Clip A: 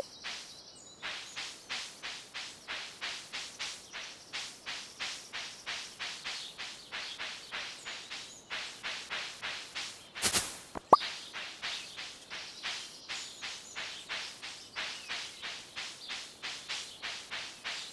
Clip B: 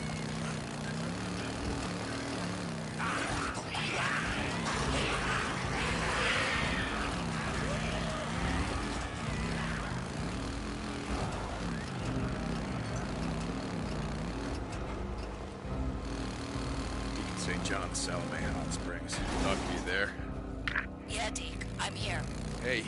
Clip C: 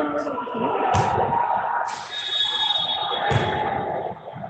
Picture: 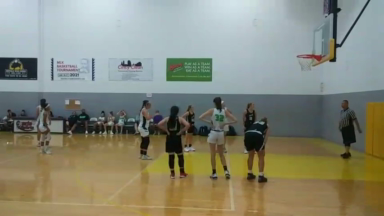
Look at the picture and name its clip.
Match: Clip C